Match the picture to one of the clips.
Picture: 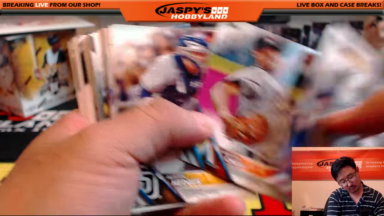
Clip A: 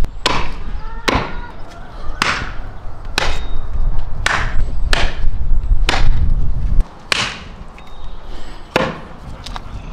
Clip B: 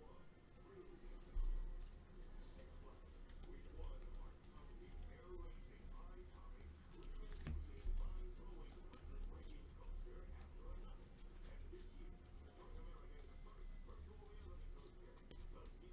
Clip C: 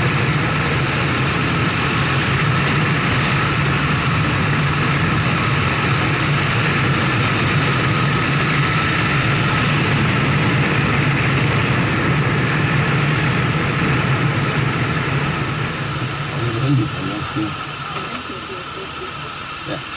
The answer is B